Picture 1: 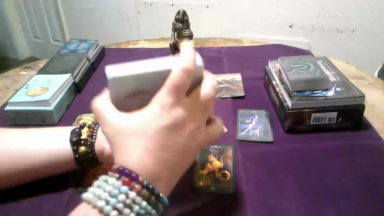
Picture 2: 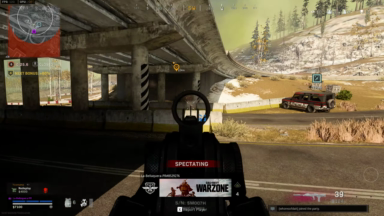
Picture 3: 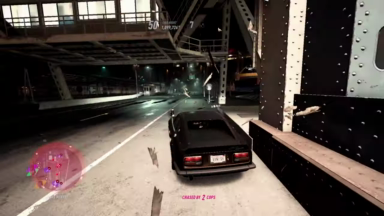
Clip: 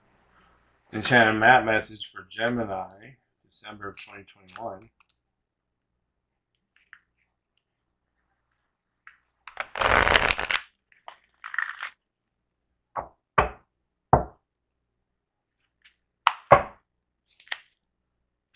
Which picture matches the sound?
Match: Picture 1